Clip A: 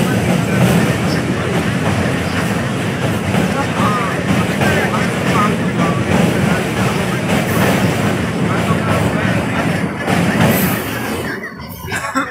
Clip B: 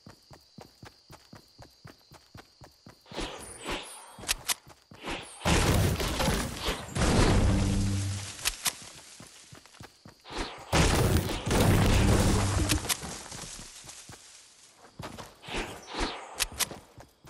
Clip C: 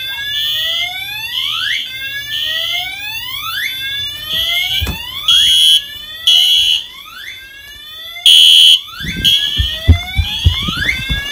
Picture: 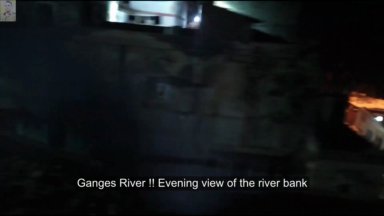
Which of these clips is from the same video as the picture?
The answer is A